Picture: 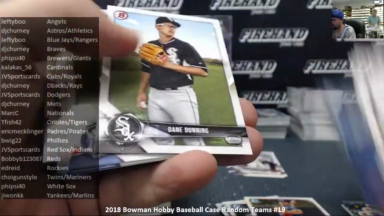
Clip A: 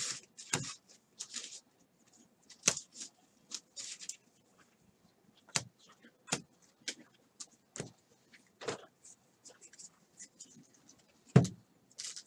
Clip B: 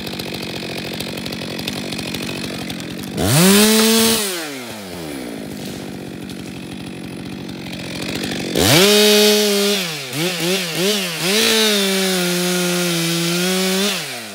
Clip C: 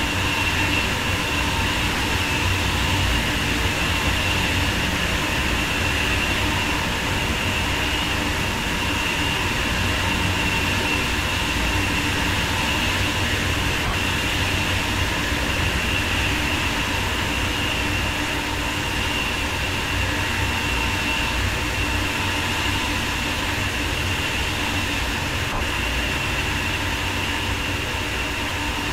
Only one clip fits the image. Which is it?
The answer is A